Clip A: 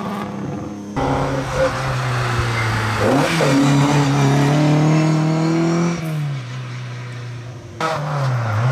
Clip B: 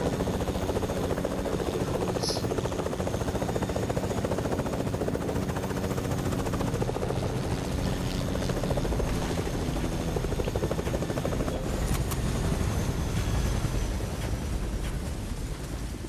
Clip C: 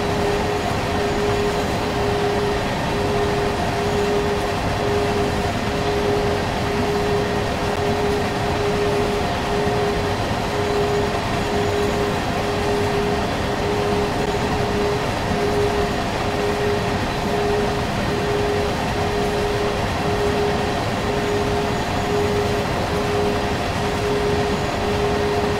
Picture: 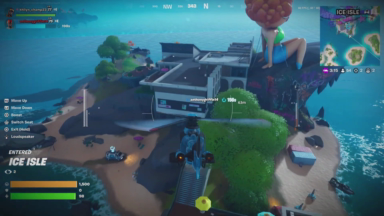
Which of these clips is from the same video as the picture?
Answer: B